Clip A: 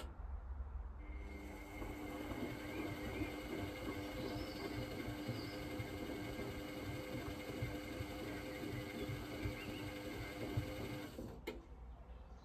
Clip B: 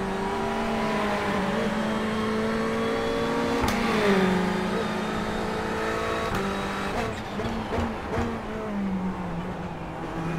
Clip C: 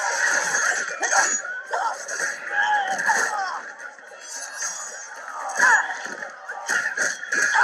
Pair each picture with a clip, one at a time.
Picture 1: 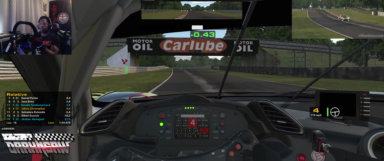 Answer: B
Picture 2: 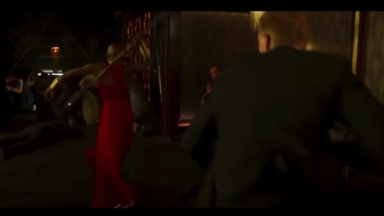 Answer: C